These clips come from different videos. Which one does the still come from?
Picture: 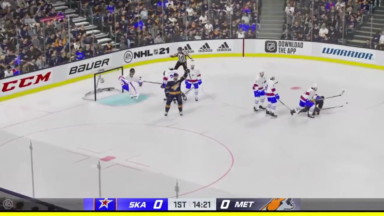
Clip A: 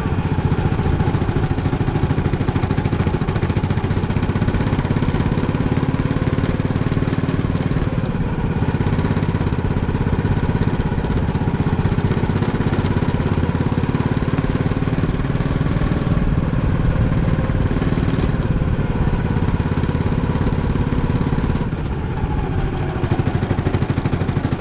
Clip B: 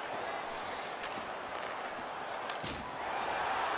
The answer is B